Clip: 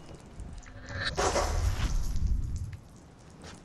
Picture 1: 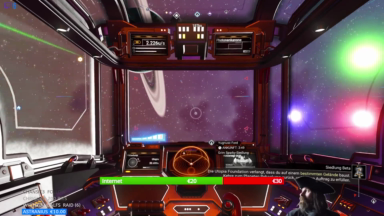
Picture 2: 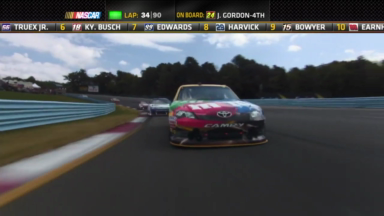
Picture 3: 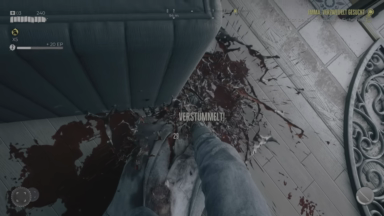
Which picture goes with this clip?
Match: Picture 3